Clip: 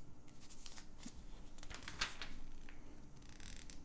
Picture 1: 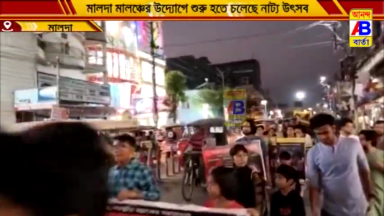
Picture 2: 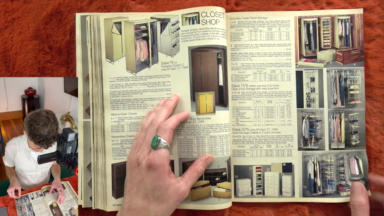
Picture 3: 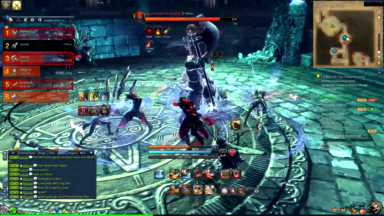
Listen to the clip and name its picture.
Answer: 2